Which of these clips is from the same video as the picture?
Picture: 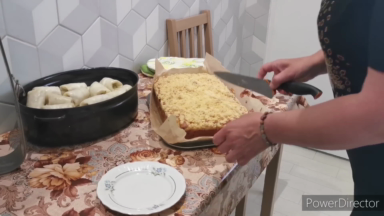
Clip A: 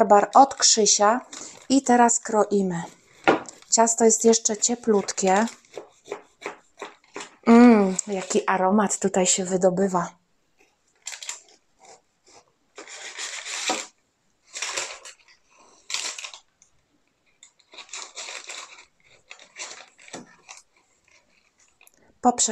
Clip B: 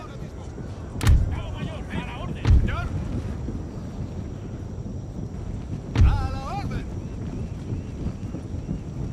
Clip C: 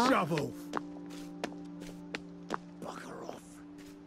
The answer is A